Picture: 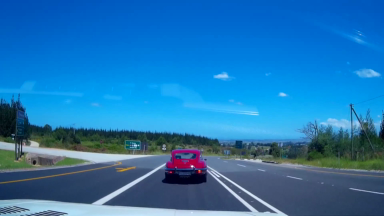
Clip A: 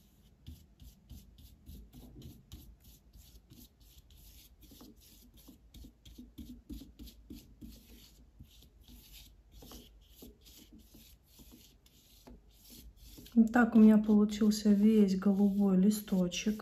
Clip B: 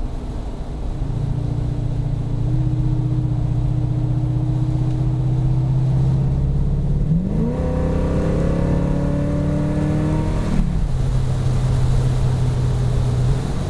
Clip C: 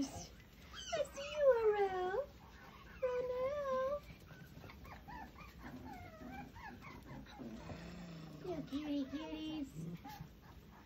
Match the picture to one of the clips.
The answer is B